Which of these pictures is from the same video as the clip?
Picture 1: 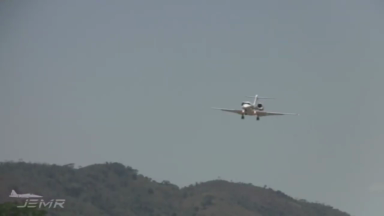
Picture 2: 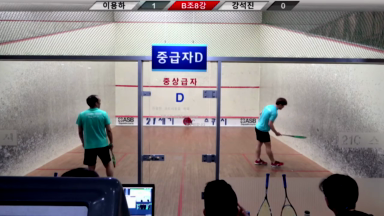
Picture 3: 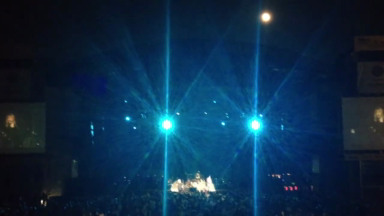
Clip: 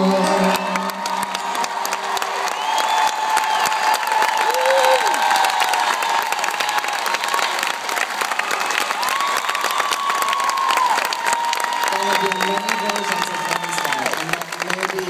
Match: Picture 3